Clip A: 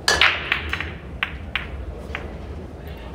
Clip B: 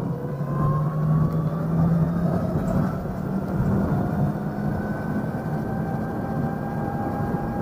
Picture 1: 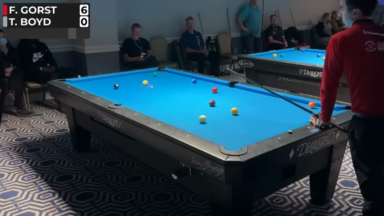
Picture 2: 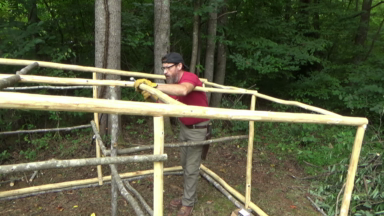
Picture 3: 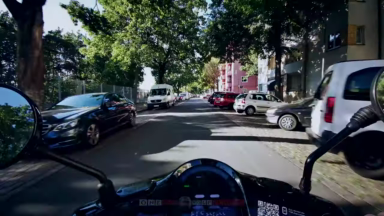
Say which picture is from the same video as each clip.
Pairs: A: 1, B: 3